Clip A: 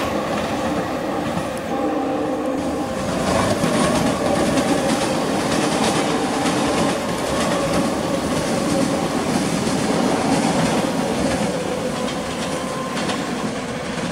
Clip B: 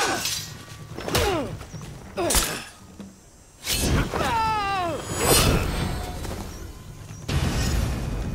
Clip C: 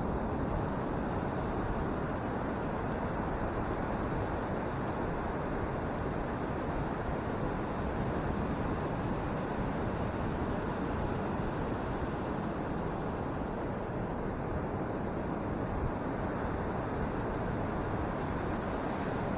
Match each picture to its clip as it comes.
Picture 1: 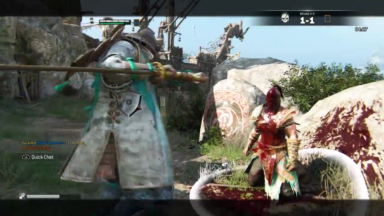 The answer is B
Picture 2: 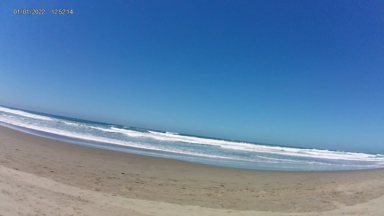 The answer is C